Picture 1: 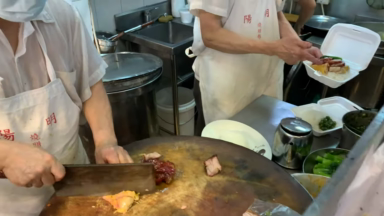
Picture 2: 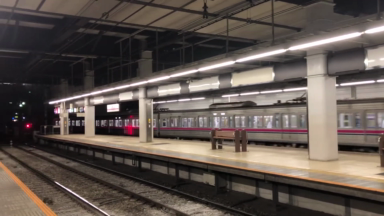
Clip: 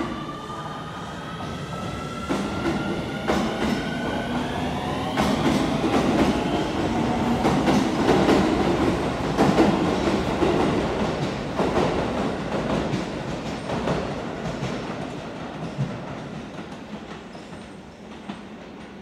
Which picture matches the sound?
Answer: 2